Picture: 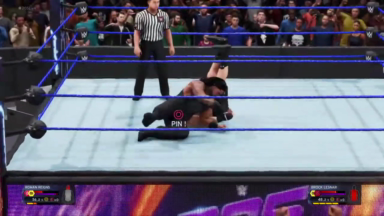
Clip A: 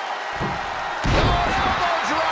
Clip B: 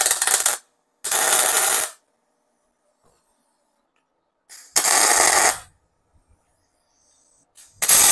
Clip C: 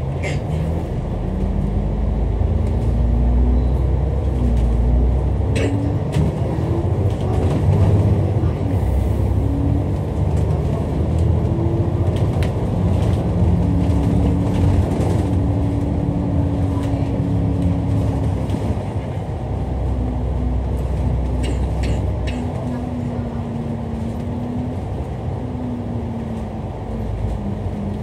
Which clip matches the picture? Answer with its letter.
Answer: A